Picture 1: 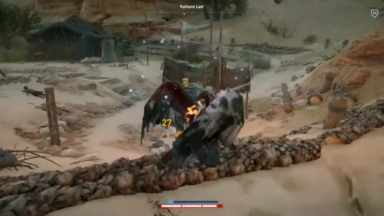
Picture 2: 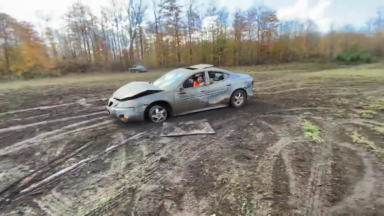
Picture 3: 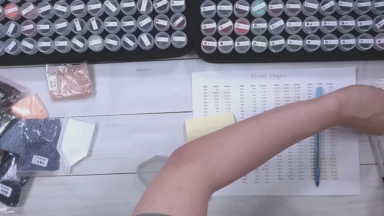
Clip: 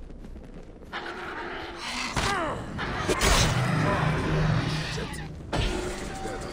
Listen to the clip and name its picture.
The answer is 1